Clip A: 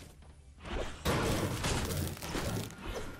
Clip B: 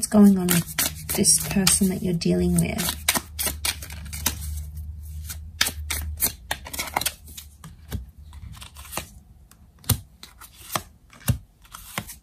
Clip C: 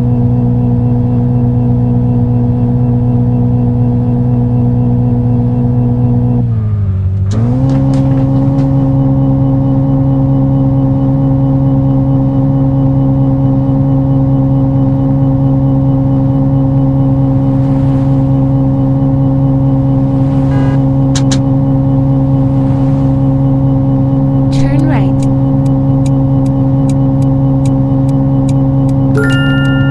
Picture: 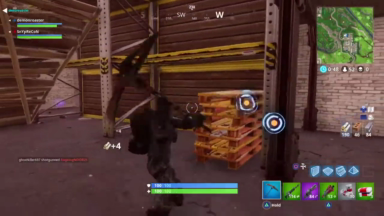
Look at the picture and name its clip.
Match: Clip A